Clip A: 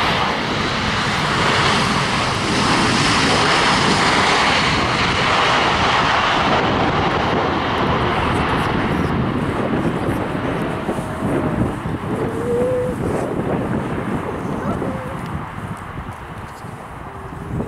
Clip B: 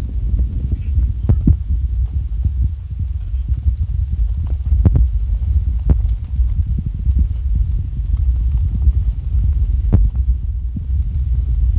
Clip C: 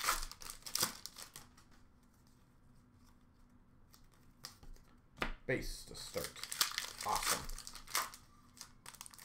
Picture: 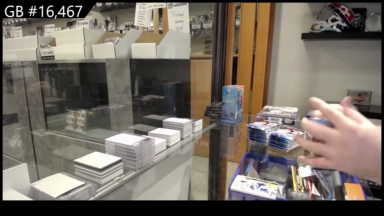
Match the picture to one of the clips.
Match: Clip C